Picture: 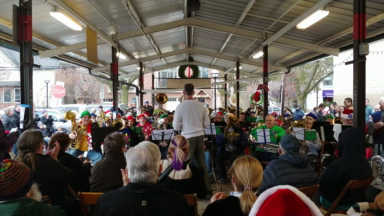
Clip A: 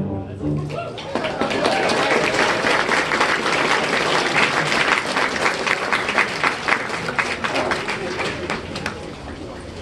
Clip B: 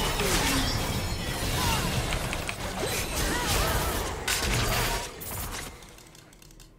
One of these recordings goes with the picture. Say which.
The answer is A